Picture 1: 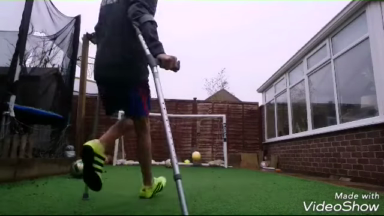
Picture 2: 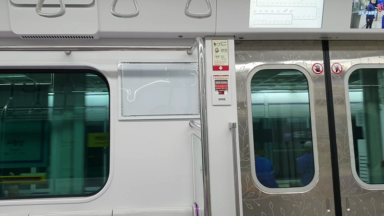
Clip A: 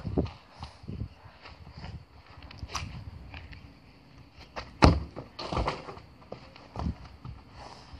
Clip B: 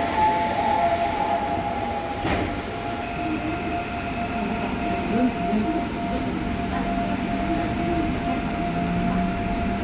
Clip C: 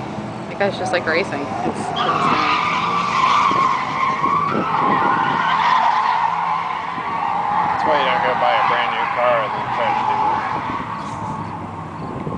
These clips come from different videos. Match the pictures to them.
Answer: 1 A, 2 B